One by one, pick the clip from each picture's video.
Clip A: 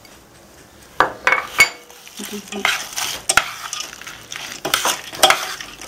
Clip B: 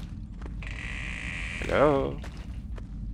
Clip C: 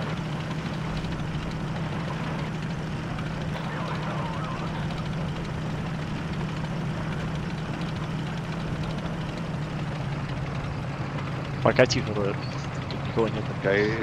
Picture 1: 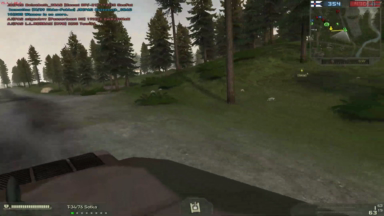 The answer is C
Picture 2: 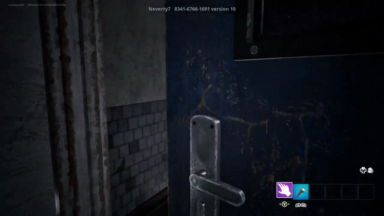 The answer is B